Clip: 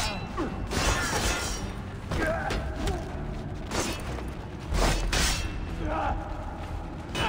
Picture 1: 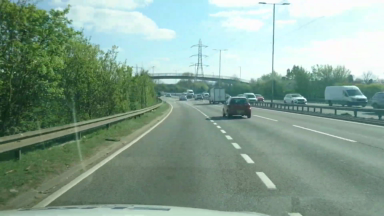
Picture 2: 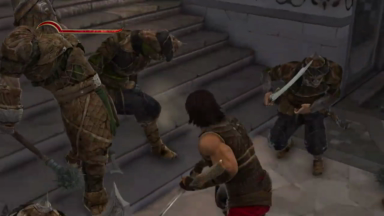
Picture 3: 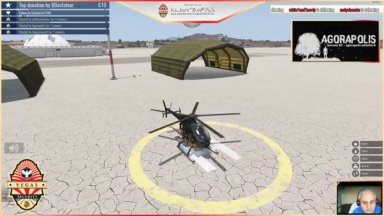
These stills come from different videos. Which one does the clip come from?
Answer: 2